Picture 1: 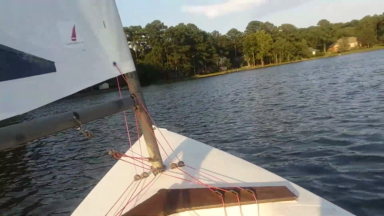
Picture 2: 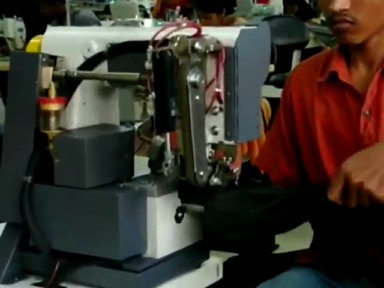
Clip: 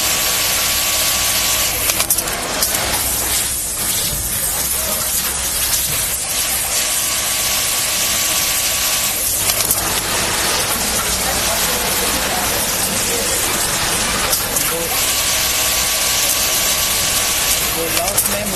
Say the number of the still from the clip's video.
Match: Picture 2